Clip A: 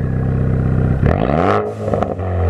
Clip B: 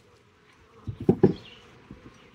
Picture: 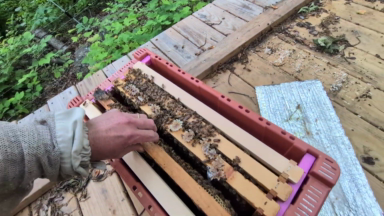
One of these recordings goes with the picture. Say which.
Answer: B